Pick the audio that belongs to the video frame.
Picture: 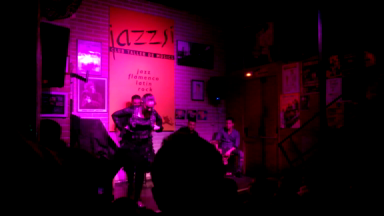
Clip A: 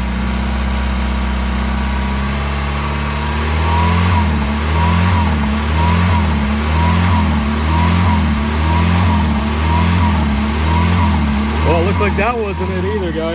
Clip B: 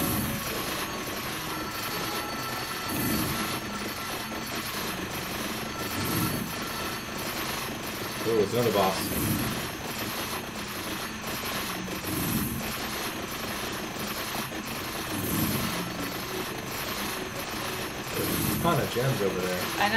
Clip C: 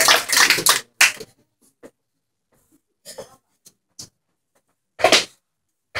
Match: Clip C